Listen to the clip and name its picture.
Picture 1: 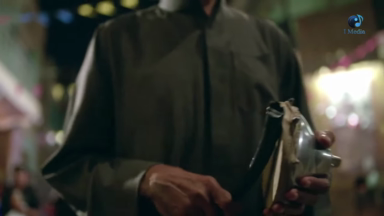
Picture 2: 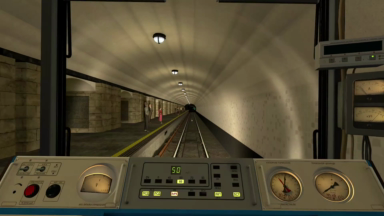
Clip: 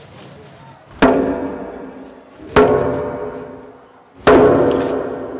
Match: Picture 1